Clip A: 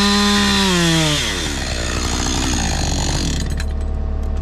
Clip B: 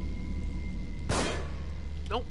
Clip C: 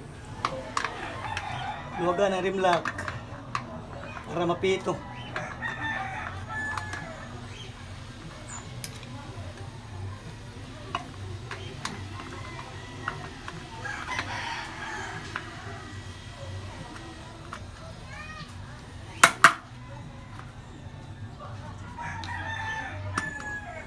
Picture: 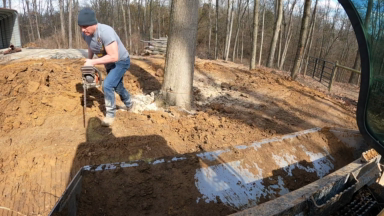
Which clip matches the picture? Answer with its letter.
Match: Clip A